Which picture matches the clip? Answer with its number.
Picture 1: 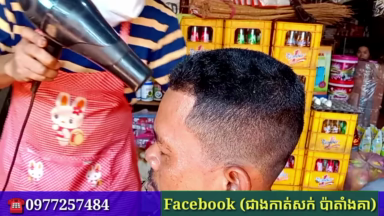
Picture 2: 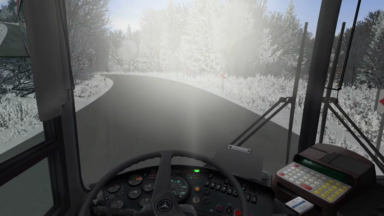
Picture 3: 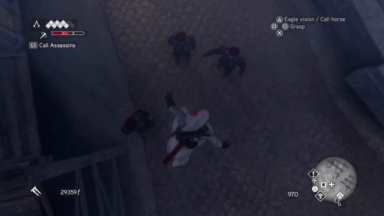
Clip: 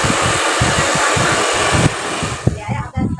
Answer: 1